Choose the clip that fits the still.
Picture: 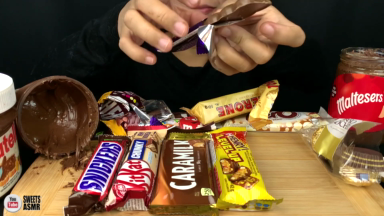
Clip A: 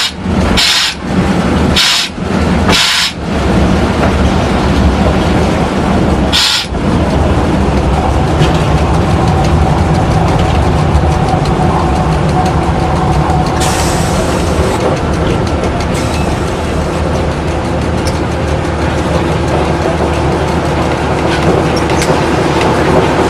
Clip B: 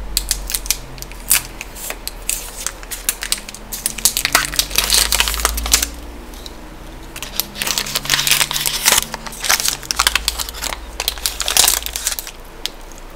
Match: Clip B